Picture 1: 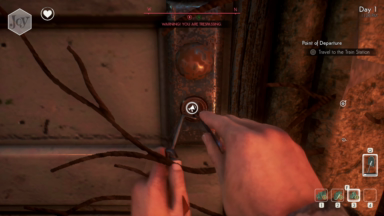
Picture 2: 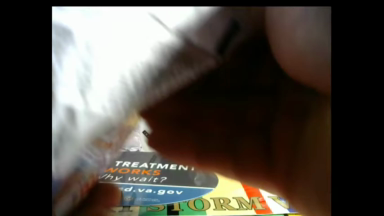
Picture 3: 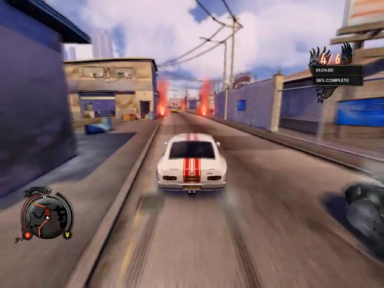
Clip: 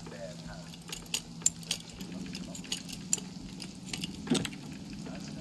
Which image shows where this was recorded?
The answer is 1